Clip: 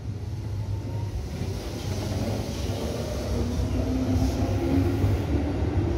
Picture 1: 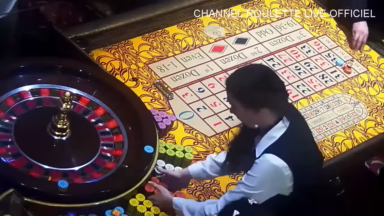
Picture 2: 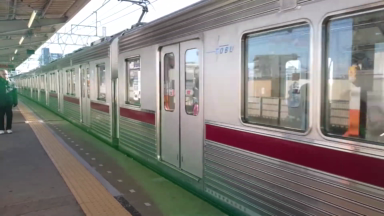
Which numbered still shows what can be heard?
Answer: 2